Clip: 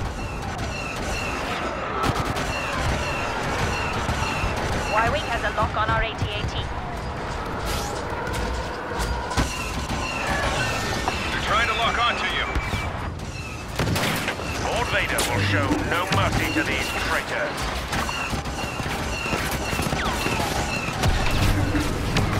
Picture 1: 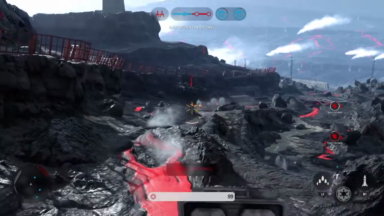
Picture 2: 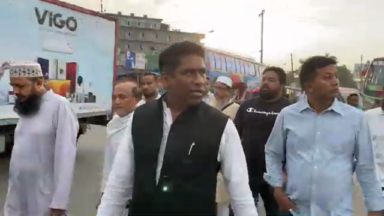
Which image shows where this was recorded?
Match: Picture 1